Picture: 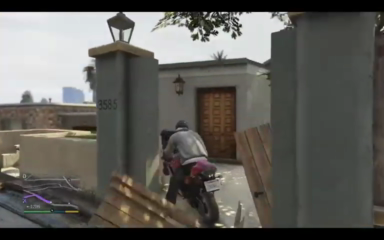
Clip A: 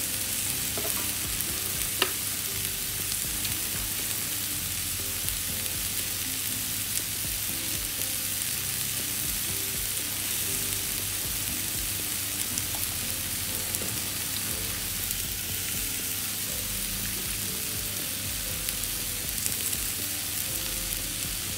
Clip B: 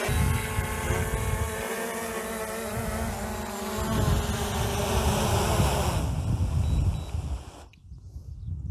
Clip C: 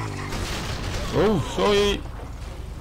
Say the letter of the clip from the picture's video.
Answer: C